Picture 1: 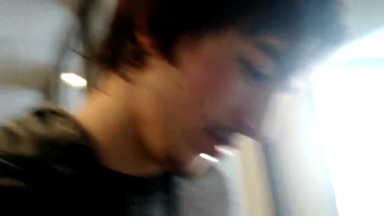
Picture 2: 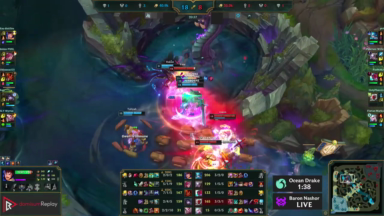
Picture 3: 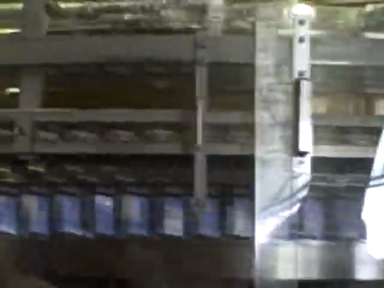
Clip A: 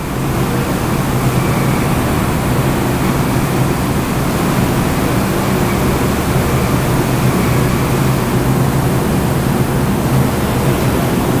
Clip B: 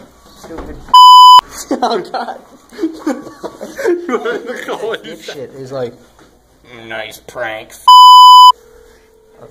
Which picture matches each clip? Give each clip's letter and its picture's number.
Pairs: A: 3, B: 1